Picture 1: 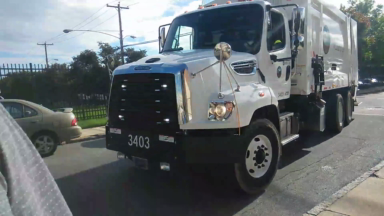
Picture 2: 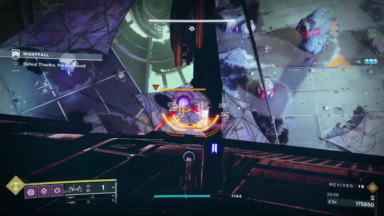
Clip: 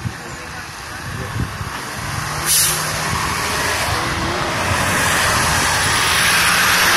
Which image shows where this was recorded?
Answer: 1